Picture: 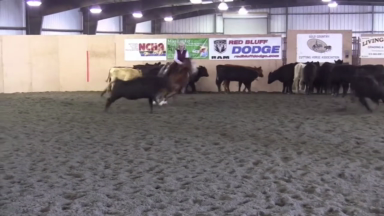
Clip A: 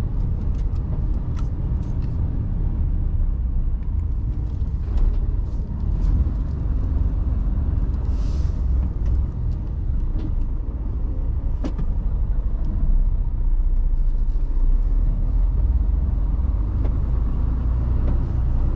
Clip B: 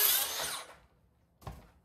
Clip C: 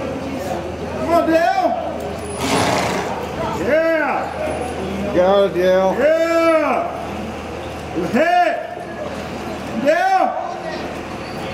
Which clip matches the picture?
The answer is C